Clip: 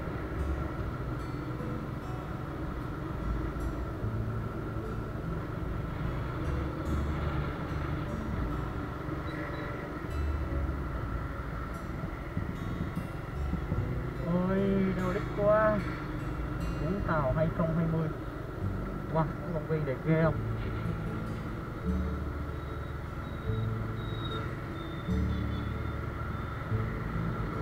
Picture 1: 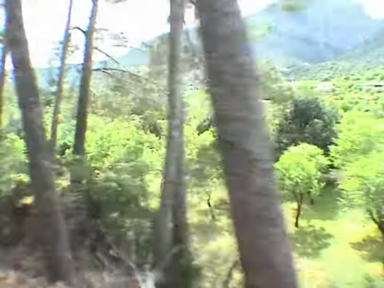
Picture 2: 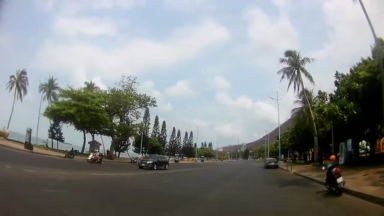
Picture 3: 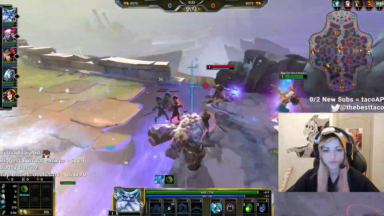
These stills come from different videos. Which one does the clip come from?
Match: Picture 2